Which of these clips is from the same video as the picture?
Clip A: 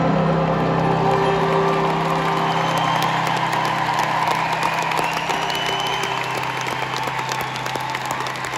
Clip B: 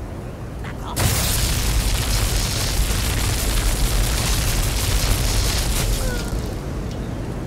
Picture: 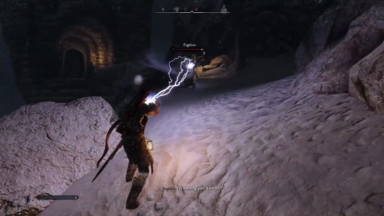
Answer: B